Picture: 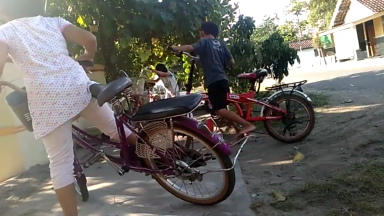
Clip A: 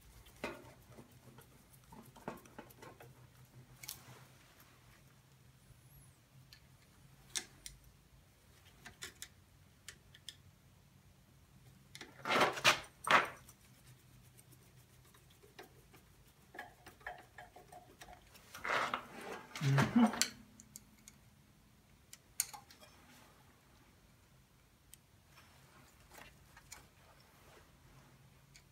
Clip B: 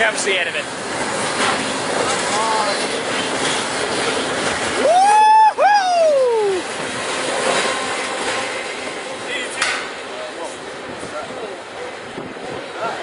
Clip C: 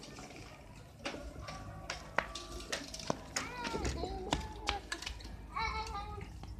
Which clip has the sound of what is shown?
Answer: C